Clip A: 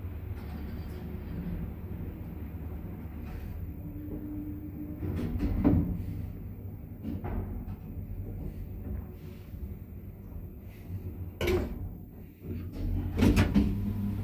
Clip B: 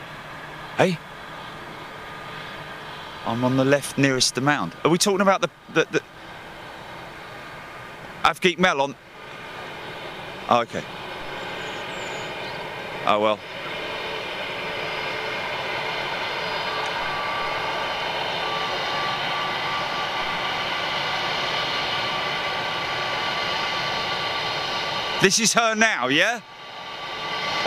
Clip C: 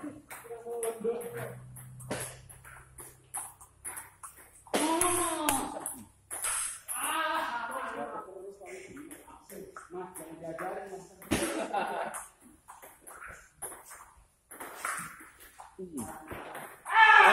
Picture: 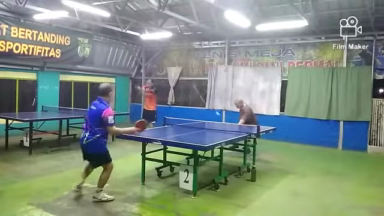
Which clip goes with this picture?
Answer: C